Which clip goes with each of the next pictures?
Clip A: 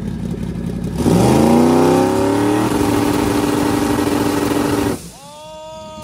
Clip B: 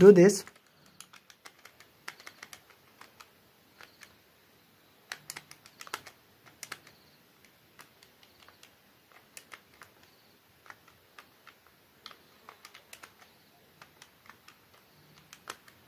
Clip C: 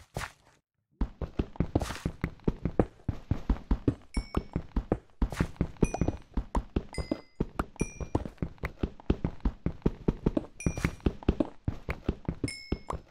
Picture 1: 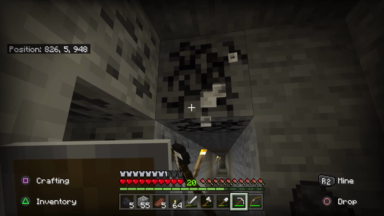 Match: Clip C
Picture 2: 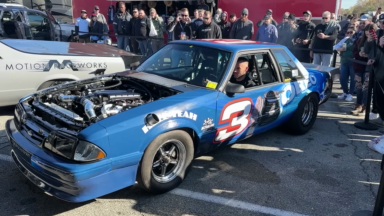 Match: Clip A